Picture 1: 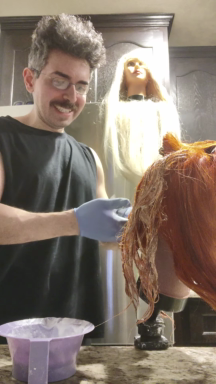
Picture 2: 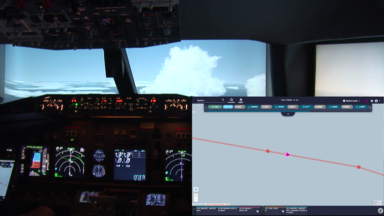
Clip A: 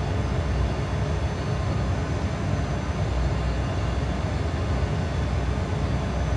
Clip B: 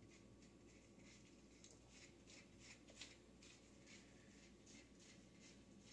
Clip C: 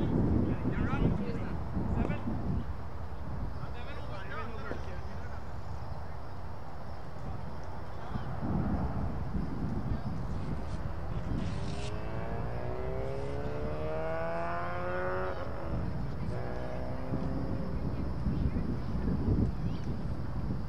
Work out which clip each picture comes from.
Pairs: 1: B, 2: A